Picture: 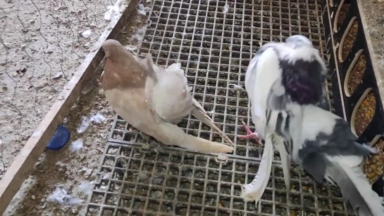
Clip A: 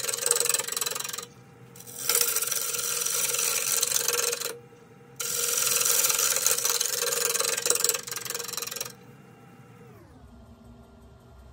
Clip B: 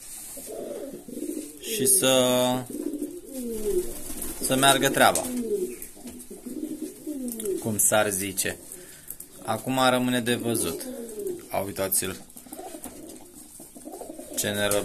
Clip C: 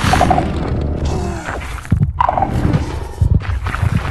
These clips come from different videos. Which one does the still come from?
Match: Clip B